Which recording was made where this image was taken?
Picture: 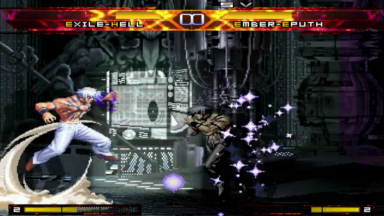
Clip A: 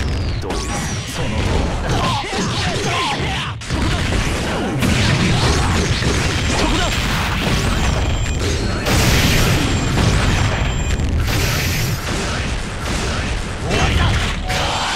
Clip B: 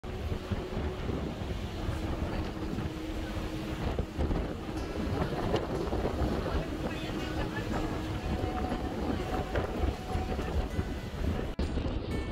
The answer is A